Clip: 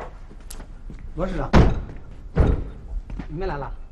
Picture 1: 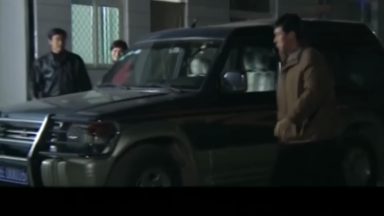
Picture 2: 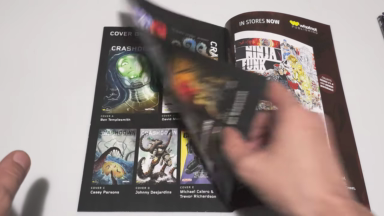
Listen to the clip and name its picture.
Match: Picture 1